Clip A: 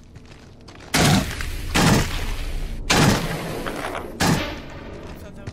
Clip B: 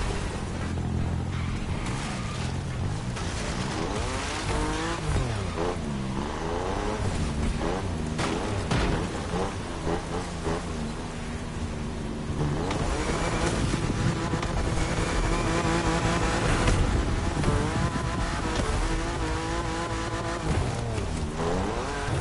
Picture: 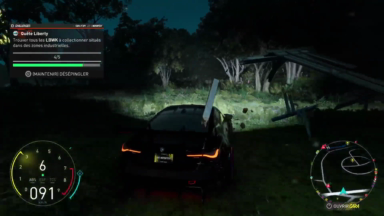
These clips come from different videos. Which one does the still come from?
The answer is B